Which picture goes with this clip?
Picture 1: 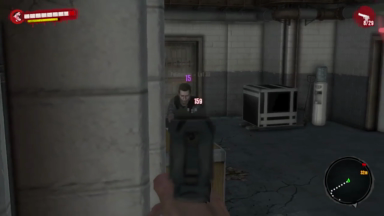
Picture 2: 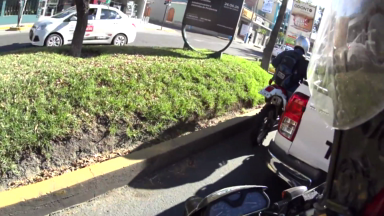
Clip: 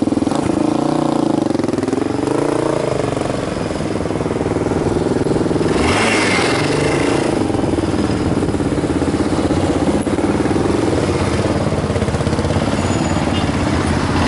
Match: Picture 2